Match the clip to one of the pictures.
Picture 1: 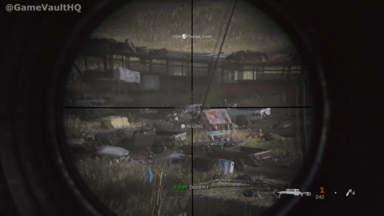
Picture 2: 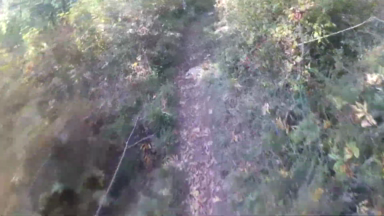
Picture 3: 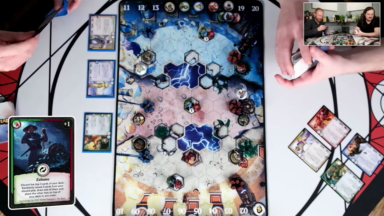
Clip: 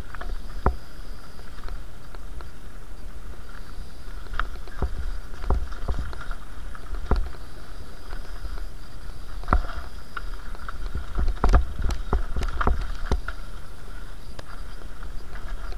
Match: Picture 2